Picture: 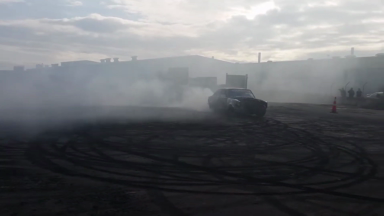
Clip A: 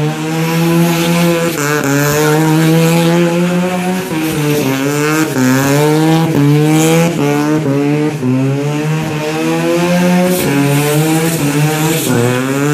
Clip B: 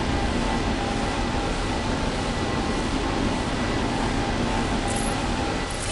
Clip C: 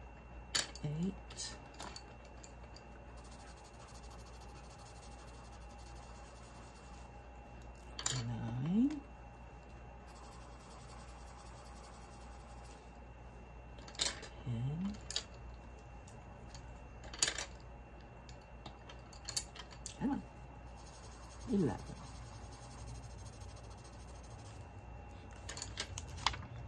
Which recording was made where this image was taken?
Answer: A